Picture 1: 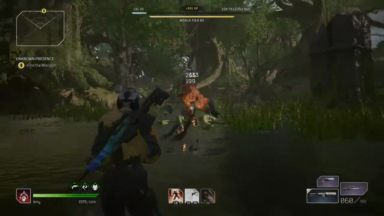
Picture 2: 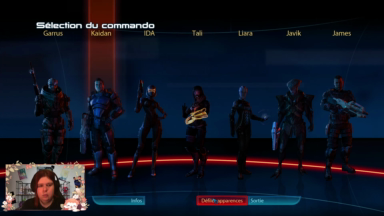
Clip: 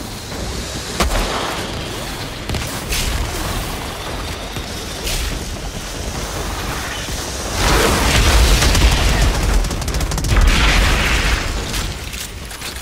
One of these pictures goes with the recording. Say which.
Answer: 1